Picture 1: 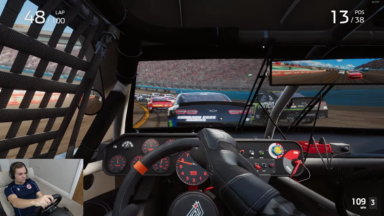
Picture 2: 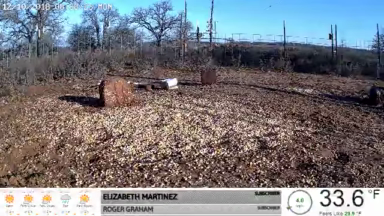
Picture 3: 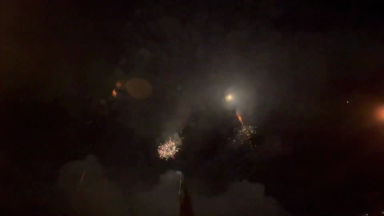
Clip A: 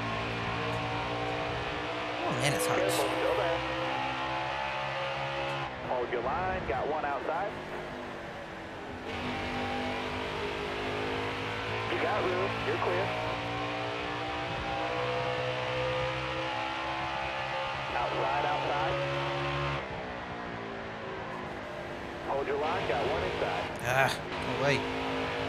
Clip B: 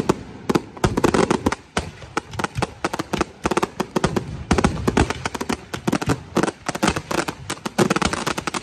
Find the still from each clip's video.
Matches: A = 1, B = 3